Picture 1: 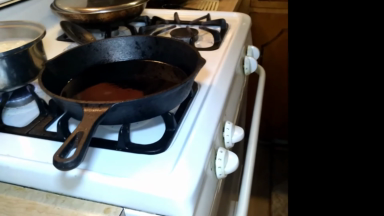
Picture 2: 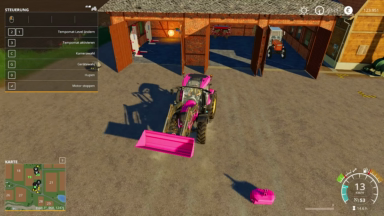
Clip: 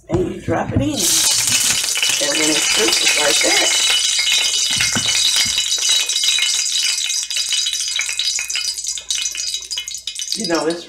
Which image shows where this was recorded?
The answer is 1